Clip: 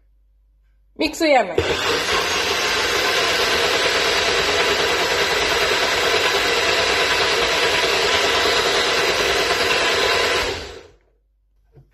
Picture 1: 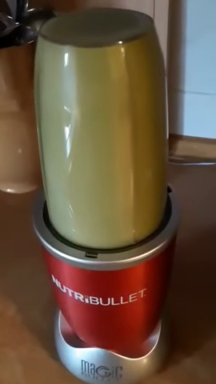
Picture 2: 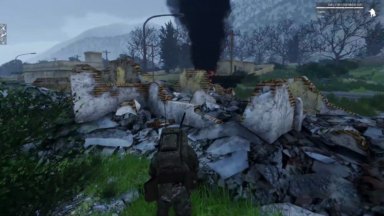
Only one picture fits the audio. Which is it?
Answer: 1